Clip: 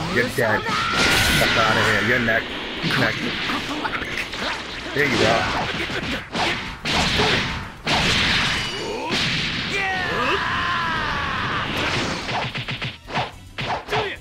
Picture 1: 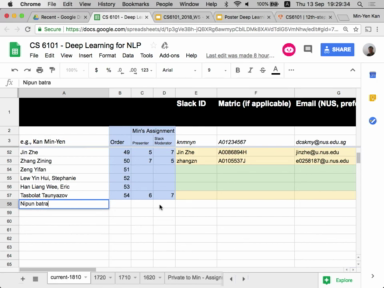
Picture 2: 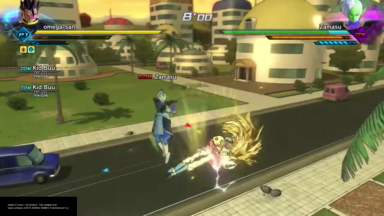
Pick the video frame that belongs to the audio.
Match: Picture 2